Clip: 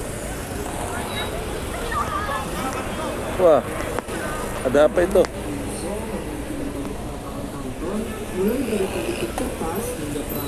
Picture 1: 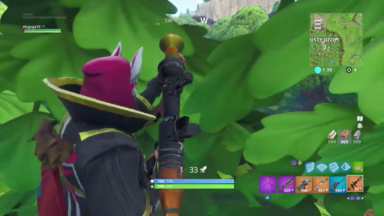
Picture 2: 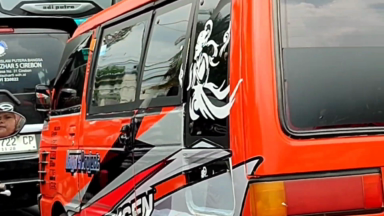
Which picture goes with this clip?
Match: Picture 2